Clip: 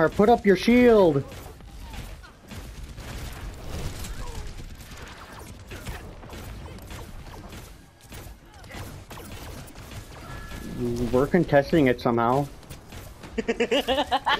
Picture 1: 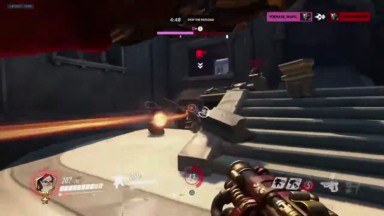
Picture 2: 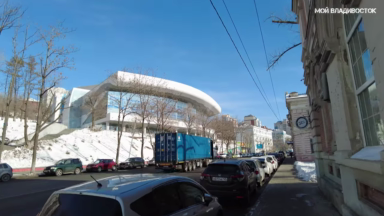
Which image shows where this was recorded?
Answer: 1